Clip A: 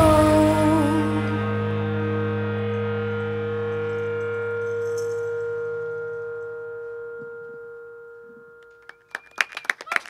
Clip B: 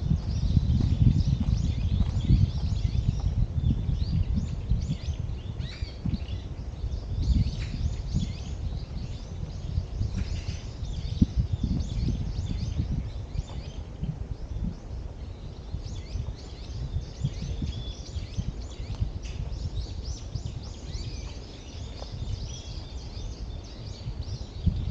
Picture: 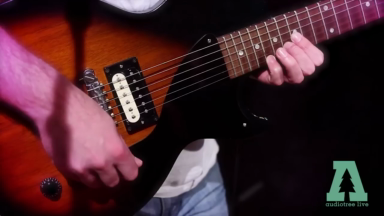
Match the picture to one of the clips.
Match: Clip A